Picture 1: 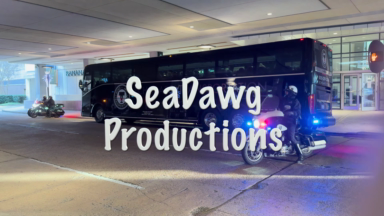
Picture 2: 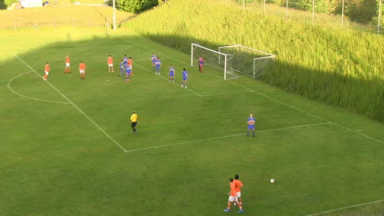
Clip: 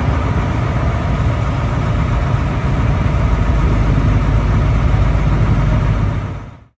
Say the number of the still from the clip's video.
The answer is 1